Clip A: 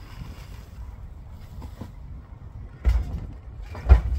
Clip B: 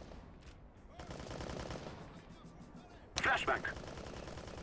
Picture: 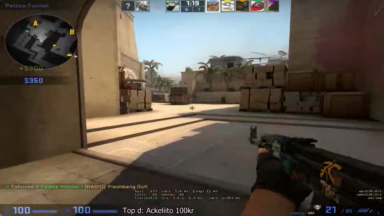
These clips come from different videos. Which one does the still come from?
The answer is B